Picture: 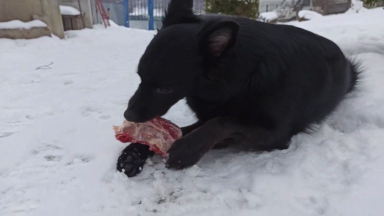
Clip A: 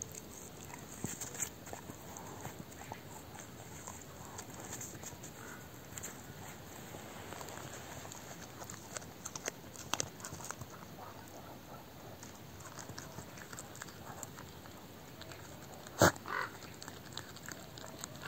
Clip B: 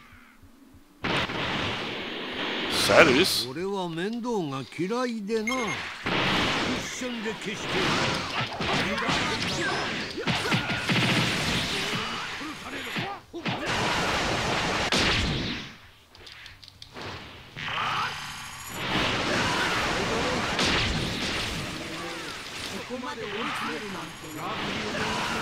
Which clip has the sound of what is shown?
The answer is A